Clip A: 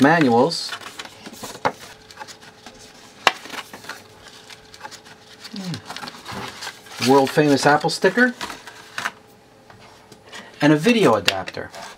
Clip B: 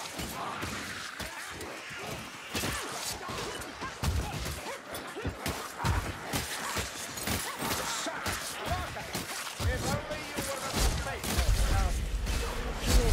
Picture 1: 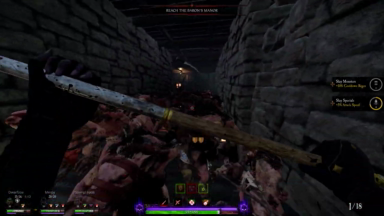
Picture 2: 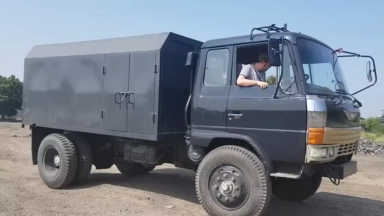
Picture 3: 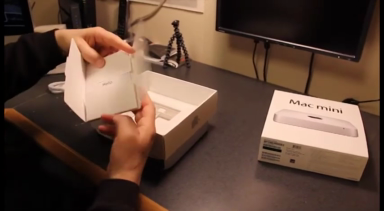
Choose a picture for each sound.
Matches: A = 3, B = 1